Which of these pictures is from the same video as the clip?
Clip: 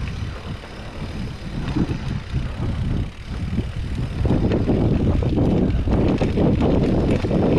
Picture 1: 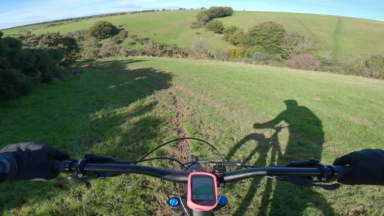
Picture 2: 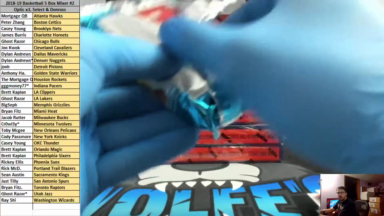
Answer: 1